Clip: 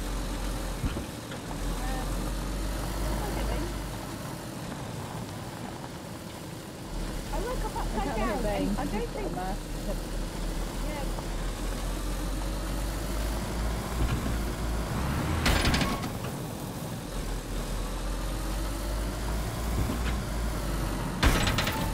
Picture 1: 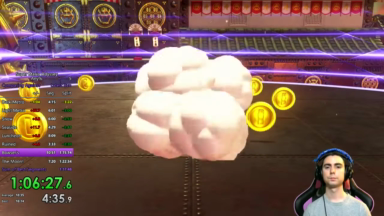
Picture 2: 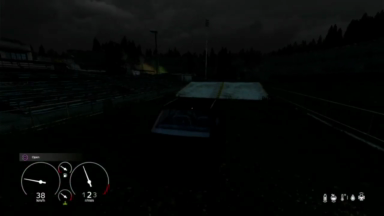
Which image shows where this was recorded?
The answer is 2